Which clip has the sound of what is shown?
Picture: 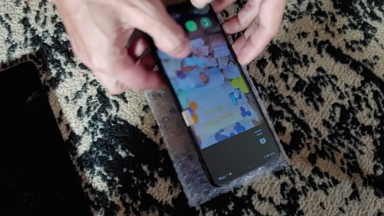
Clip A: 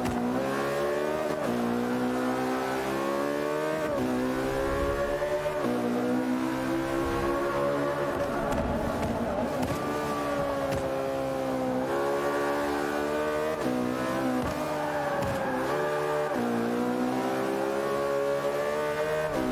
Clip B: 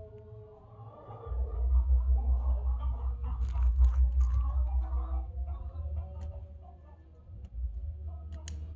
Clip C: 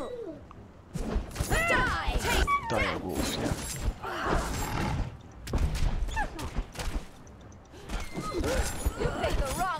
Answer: B